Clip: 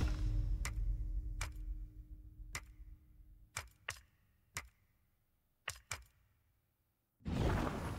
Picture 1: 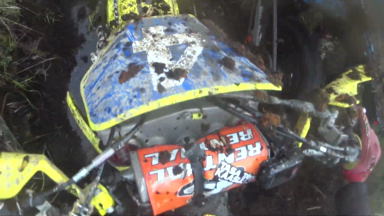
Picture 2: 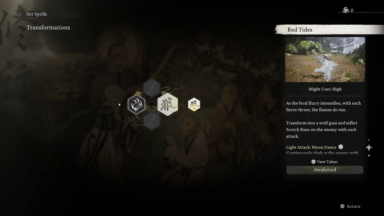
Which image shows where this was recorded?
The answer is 2